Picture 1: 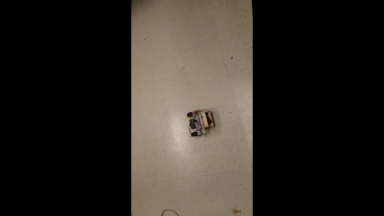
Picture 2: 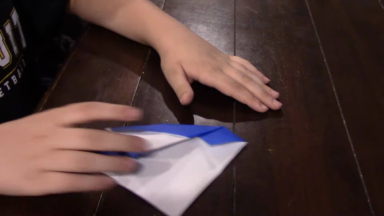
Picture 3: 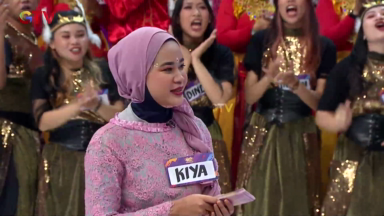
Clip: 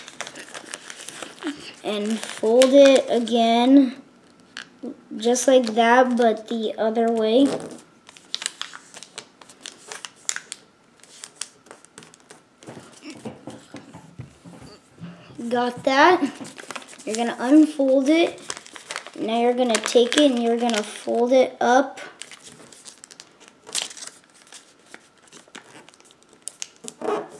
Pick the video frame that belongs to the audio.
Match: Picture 2